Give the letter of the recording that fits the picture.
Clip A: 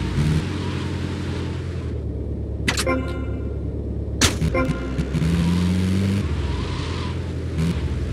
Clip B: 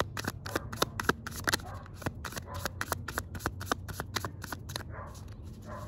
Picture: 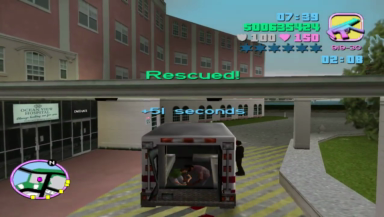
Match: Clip A